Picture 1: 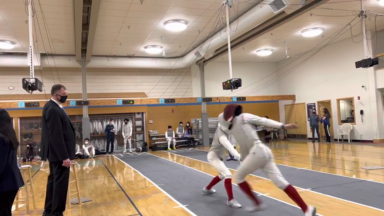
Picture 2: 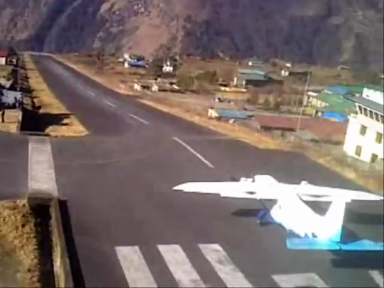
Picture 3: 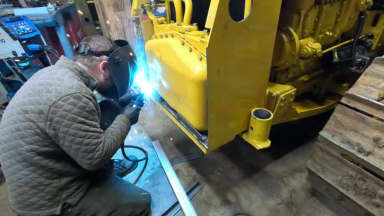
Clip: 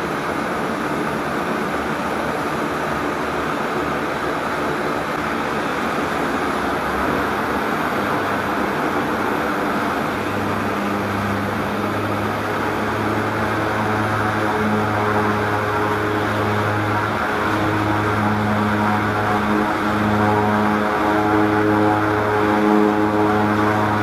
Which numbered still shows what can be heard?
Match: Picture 2